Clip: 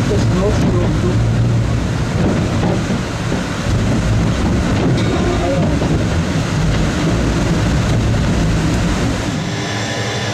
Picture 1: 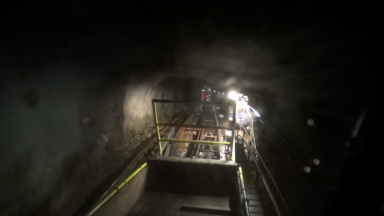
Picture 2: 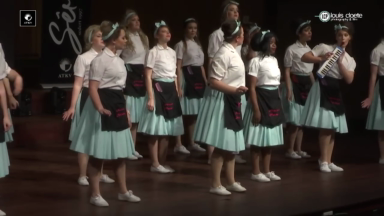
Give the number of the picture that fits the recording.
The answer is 1